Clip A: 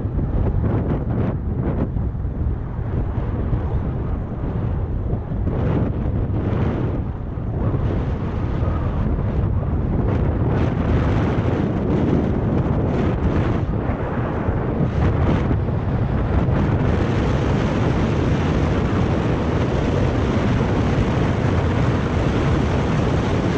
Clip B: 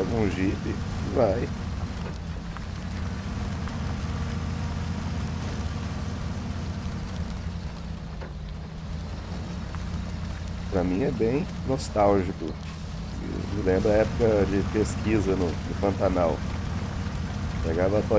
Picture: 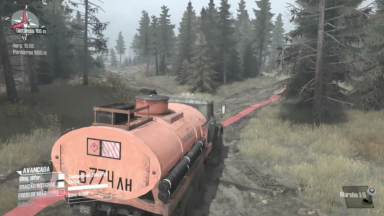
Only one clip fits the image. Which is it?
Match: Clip B